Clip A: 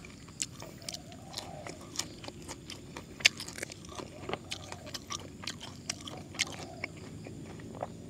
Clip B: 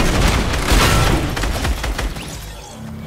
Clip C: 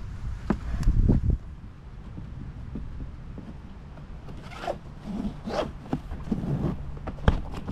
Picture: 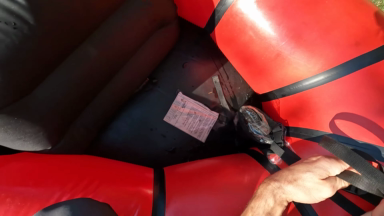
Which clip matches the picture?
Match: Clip C